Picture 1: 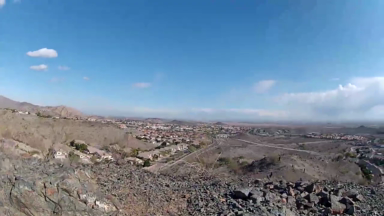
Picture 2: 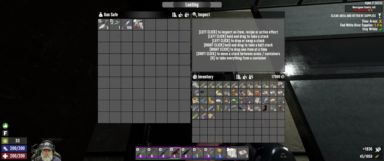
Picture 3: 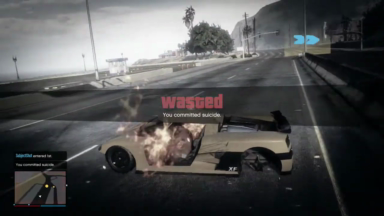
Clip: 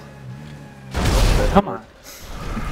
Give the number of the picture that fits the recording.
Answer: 3